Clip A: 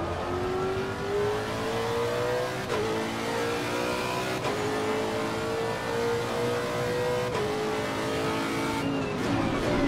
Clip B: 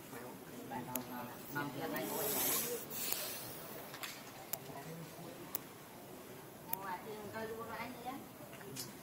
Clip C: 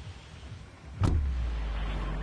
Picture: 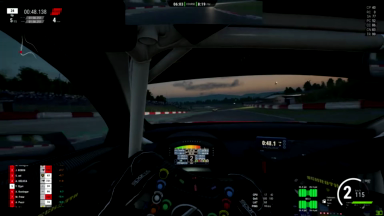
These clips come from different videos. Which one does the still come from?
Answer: A